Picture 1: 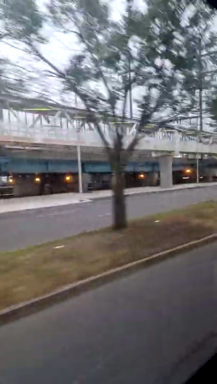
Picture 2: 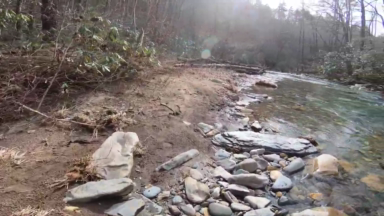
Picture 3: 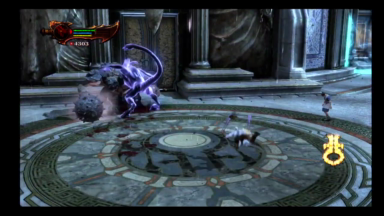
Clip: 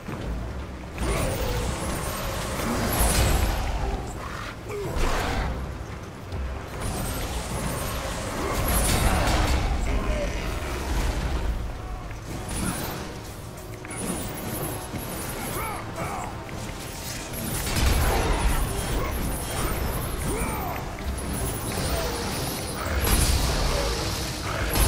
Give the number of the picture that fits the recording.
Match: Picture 3